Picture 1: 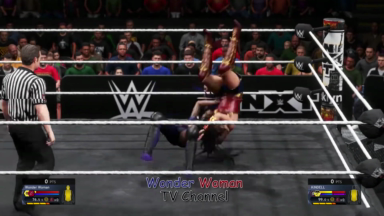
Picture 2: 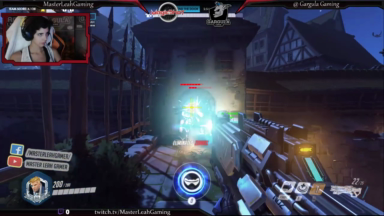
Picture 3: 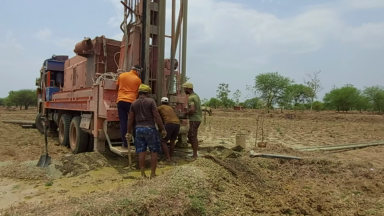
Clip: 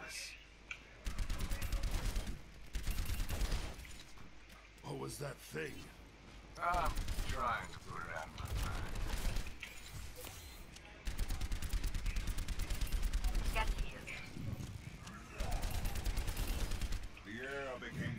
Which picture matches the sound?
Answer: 2